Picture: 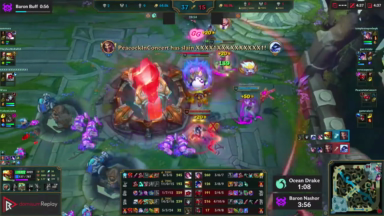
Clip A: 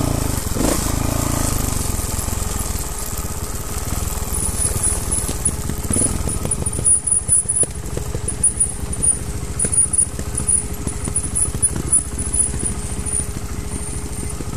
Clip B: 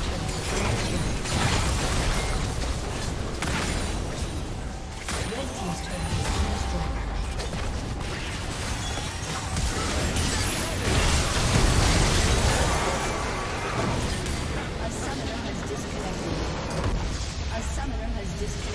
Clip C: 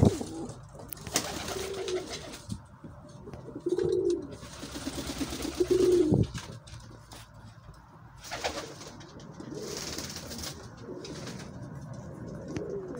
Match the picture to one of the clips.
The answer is B